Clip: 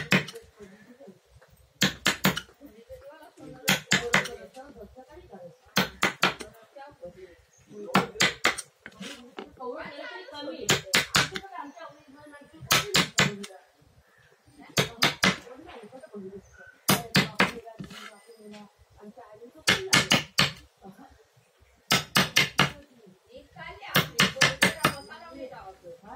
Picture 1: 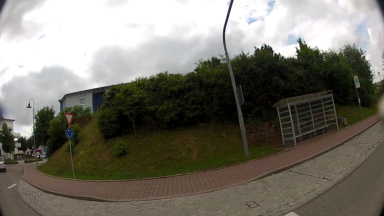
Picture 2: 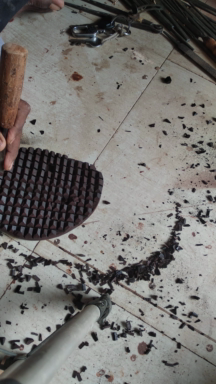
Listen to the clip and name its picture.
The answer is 2